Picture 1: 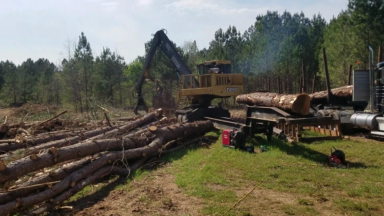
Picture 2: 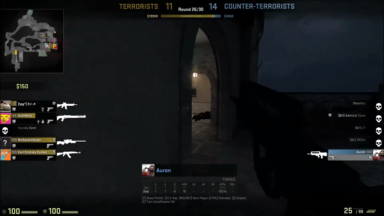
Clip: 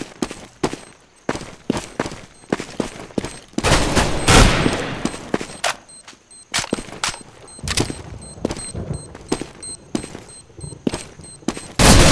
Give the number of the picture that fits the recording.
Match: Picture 2